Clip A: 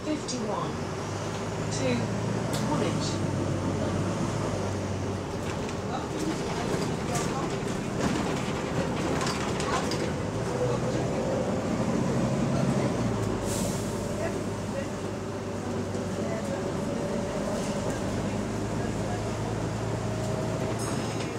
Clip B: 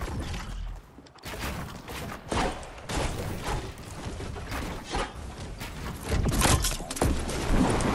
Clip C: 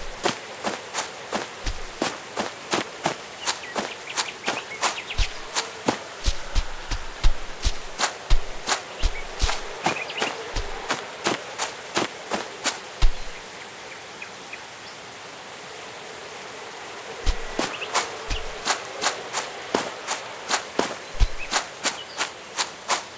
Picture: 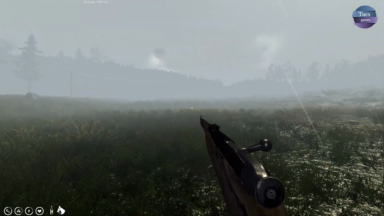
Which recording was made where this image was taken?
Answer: C